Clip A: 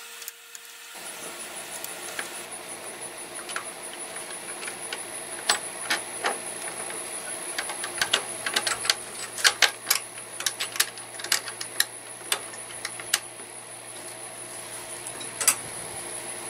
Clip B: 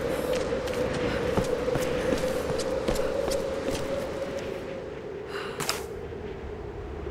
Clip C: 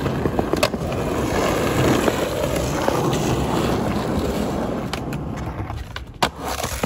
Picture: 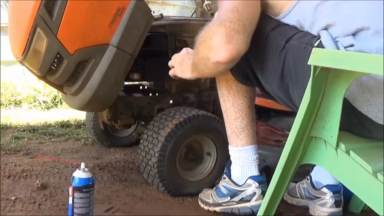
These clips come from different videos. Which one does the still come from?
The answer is A